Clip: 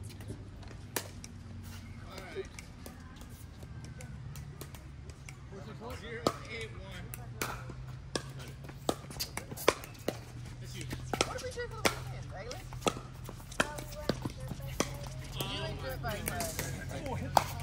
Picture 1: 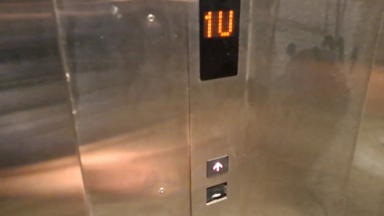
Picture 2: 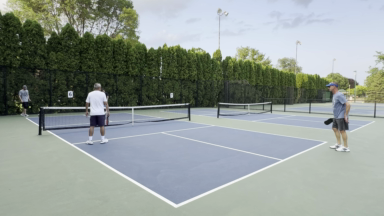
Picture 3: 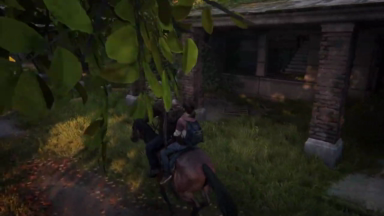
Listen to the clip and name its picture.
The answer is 2